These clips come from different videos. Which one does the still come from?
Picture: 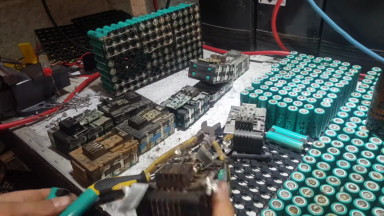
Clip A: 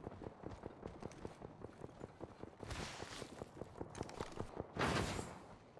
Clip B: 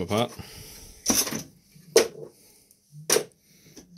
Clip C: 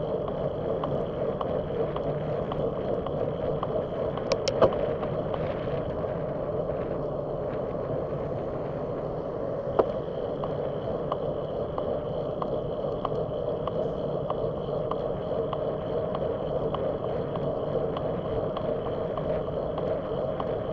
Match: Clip B